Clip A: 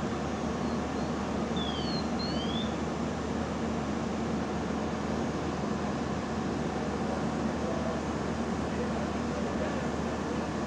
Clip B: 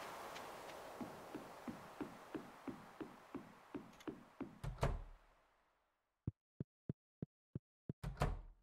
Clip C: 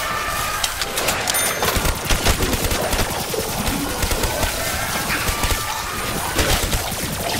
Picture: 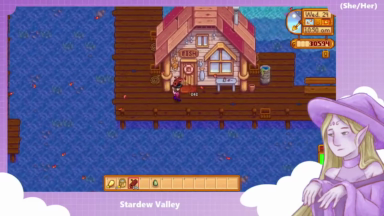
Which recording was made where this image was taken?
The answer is B